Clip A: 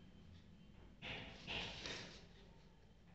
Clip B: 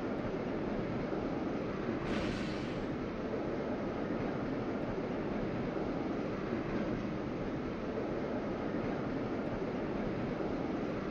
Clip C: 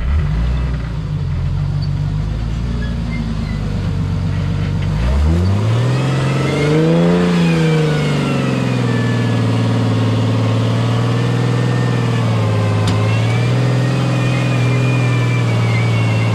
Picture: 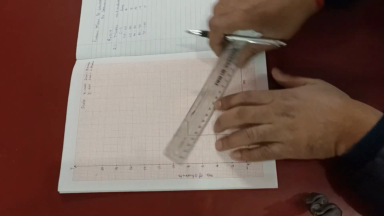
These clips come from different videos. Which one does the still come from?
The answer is A